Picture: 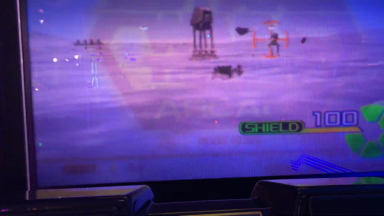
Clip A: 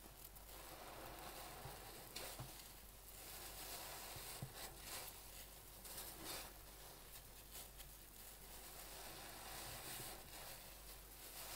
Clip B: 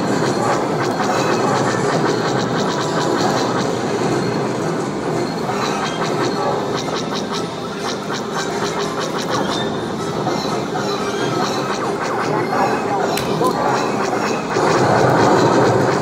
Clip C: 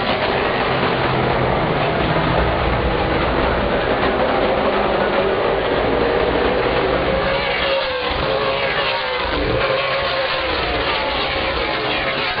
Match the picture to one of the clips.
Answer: B